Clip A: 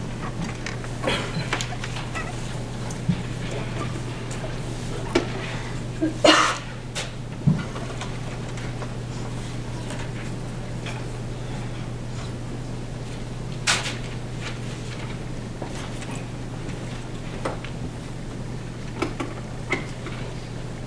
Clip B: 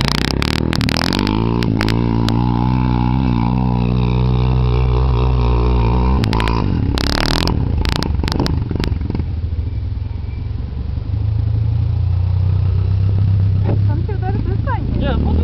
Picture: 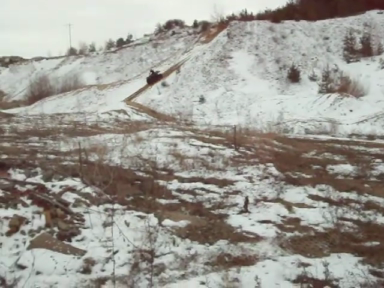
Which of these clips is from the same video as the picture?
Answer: B